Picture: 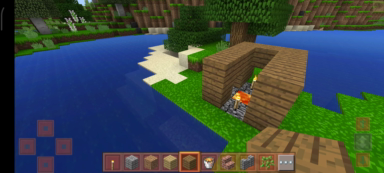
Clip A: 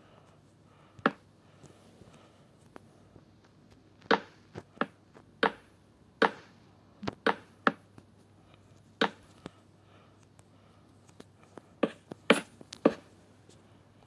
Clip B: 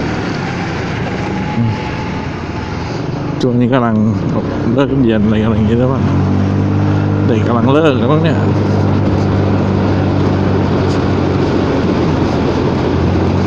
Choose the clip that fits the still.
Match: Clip A